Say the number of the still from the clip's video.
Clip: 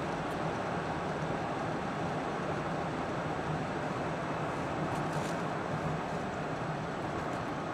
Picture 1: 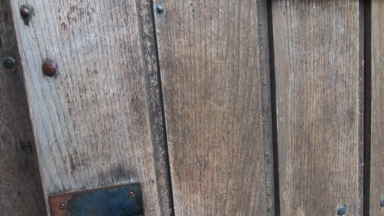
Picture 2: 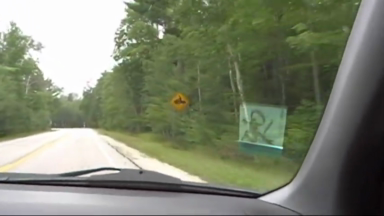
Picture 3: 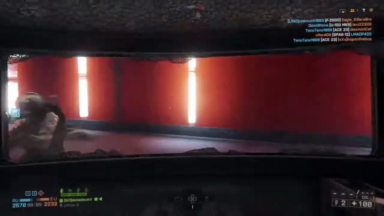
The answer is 2